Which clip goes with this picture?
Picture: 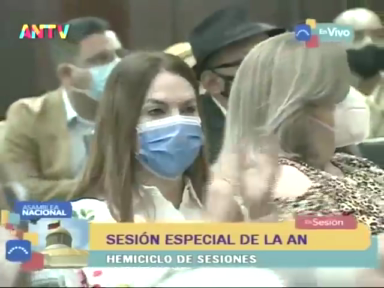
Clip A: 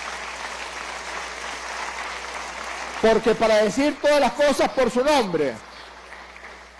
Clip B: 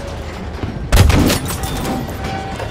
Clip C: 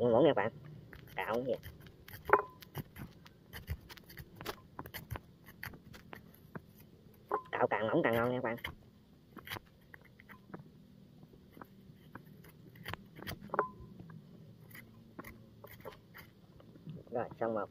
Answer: A